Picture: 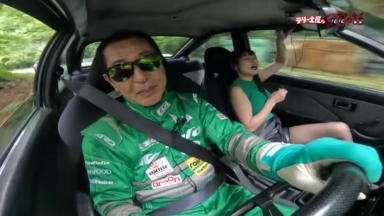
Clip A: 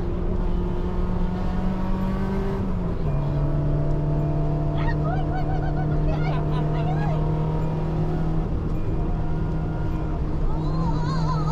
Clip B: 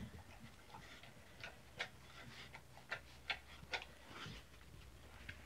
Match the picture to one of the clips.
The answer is A